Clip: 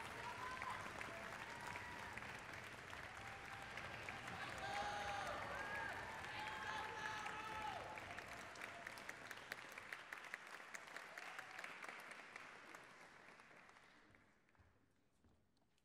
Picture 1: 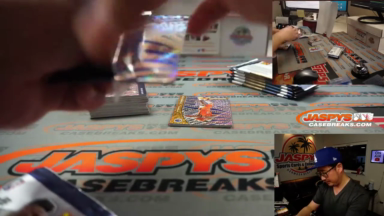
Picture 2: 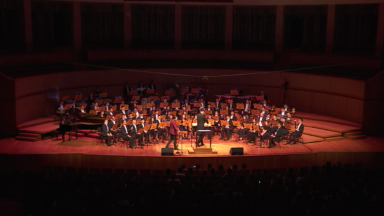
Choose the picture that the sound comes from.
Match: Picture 2